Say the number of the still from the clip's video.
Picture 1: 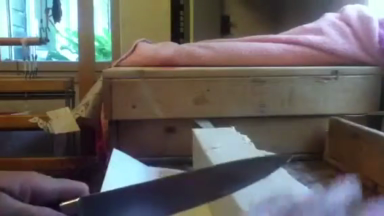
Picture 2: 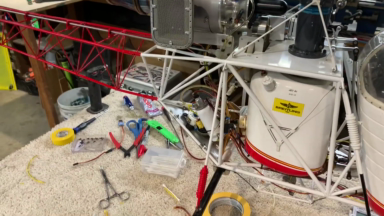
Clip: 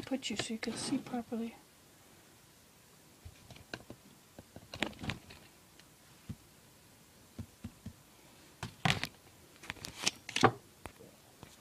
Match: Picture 1